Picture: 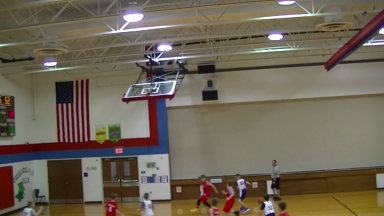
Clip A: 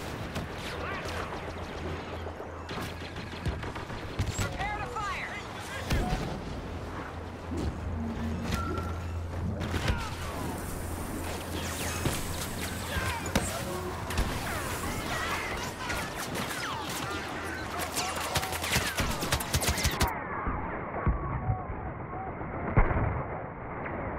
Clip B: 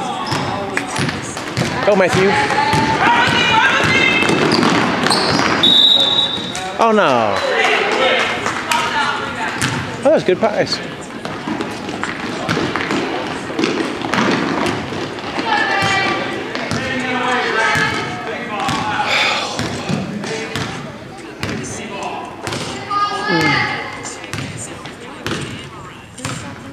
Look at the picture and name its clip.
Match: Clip B